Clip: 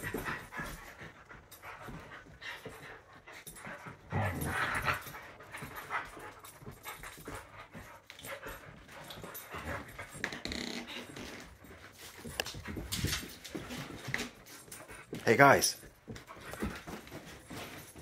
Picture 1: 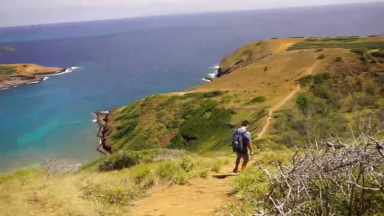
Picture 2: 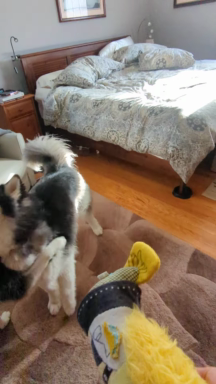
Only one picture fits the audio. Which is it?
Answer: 2